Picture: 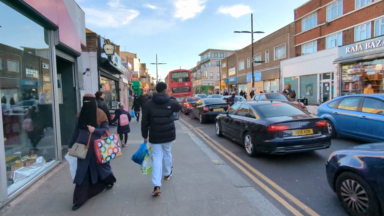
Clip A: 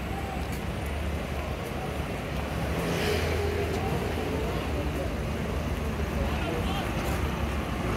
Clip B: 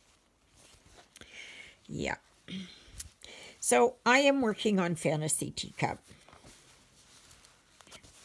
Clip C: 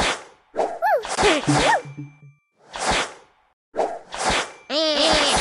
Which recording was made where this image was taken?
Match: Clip A